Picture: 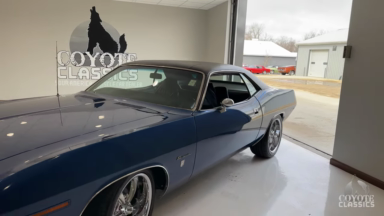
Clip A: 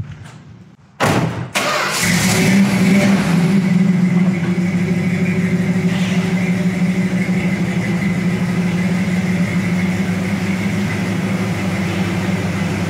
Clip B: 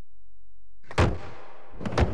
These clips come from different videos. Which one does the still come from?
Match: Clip A